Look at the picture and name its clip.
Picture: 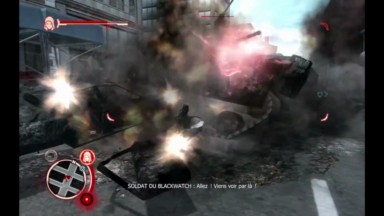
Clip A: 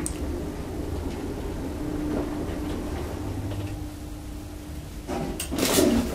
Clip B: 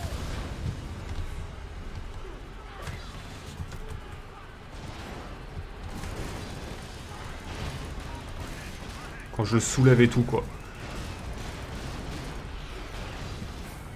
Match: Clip B